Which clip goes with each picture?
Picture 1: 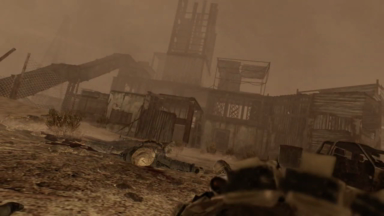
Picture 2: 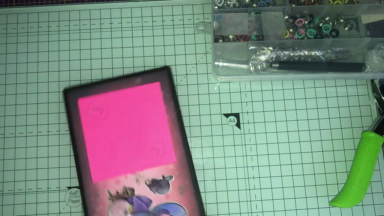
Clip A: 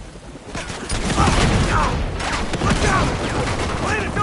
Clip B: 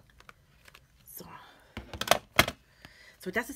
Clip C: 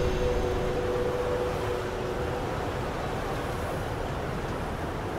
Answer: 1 C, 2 B